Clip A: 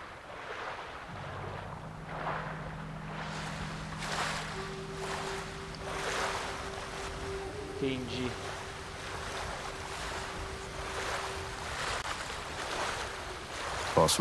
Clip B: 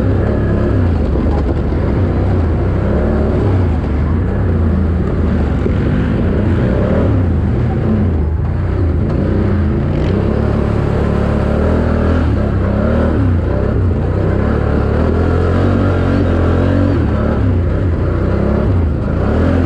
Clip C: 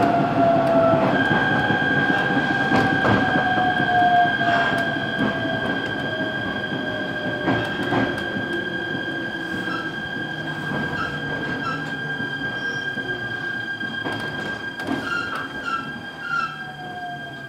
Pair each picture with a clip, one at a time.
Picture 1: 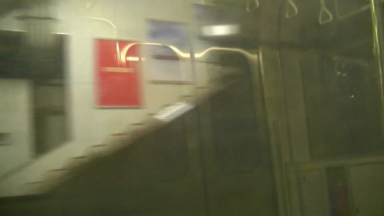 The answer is C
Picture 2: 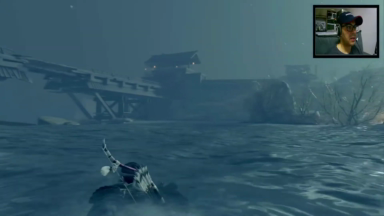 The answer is A